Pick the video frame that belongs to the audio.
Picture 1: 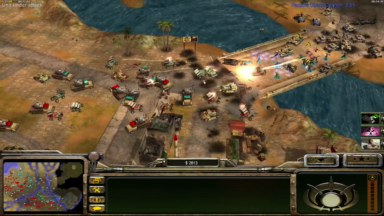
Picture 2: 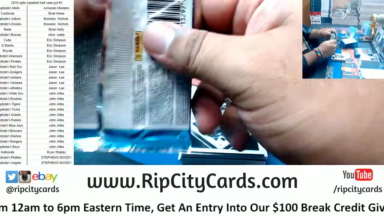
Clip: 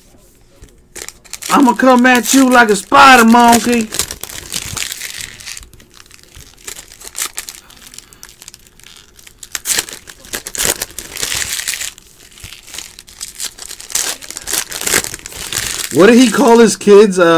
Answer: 2